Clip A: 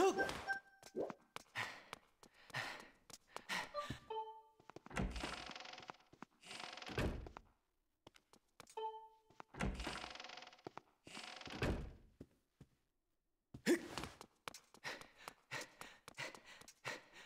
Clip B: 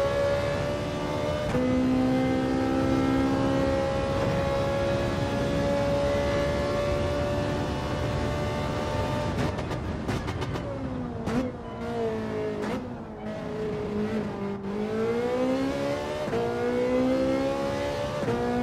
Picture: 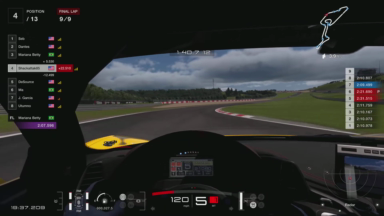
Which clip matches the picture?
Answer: B